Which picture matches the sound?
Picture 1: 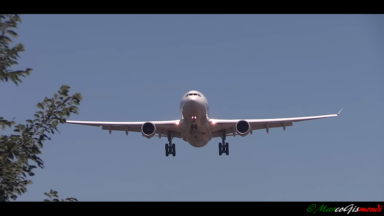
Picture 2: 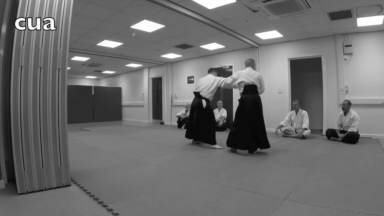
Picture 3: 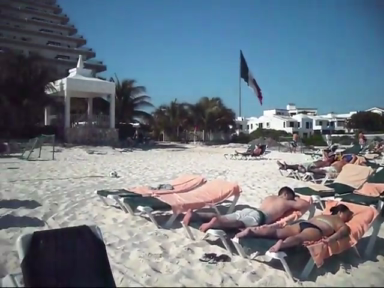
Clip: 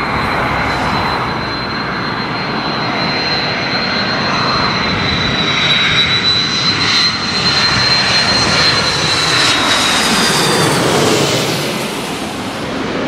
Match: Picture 1